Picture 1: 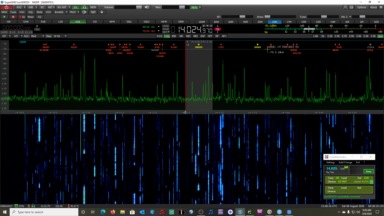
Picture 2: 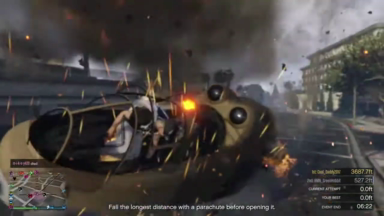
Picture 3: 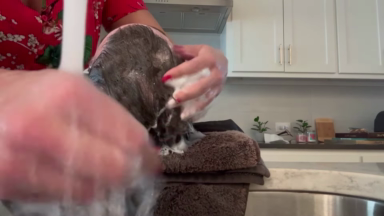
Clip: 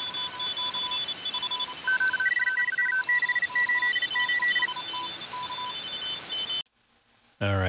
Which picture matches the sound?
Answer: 1